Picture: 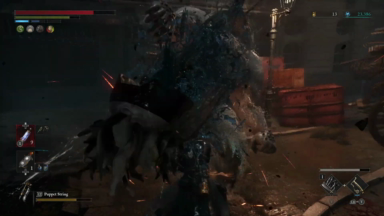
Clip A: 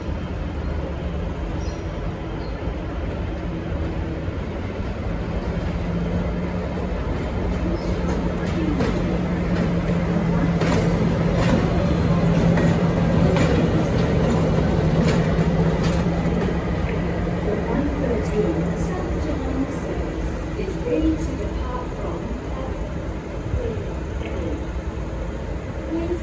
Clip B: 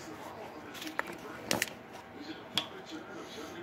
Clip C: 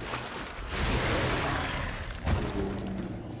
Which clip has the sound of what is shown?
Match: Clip C